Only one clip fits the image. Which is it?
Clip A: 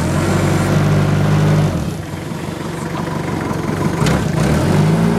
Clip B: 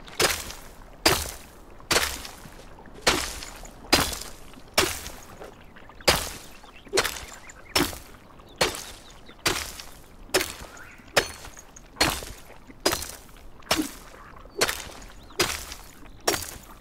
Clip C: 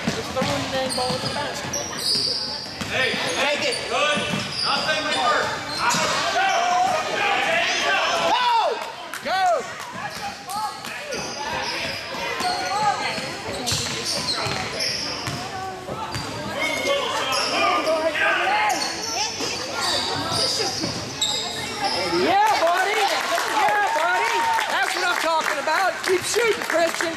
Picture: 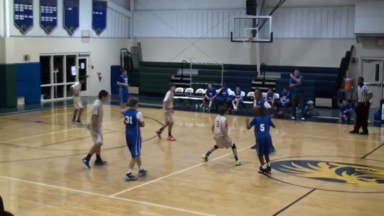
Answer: C